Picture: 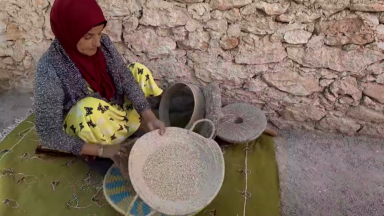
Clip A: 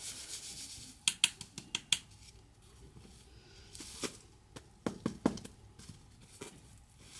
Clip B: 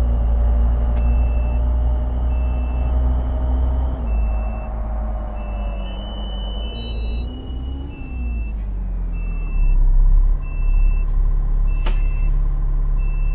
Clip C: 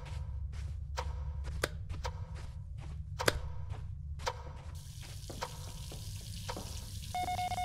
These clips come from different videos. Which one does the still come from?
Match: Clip A